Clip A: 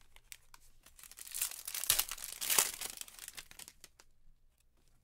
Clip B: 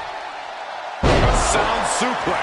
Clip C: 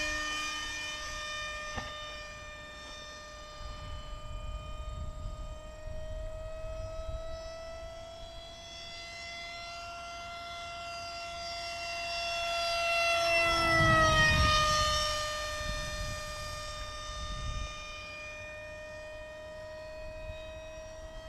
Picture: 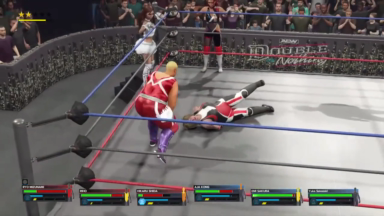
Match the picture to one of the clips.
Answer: B